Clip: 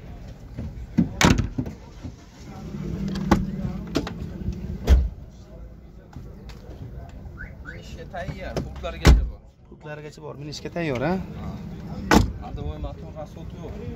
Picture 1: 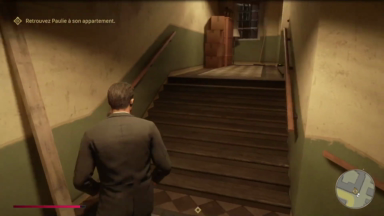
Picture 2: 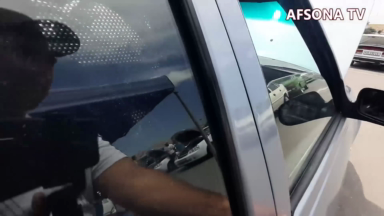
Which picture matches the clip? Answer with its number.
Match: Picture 2